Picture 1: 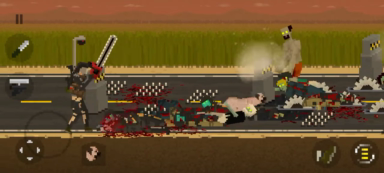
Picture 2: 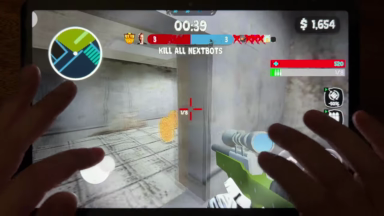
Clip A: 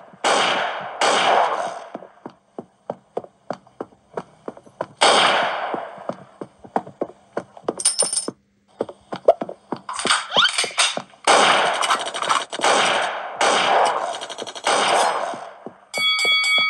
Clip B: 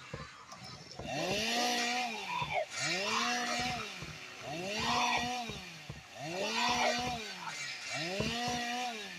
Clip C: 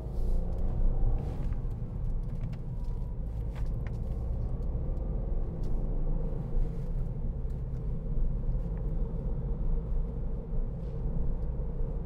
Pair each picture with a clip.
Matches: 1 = B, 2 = A